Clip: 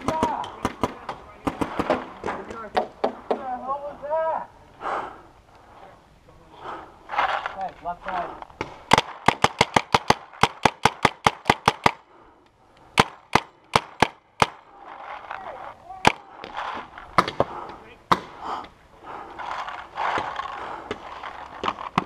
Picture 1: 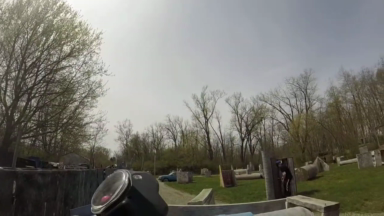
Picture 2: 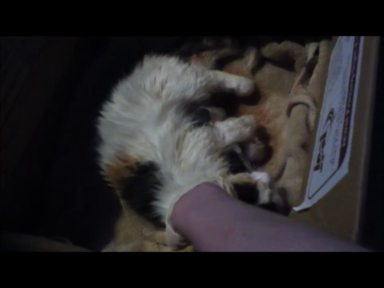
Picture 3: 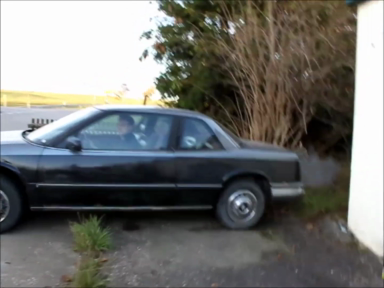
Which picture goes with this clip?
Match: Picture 1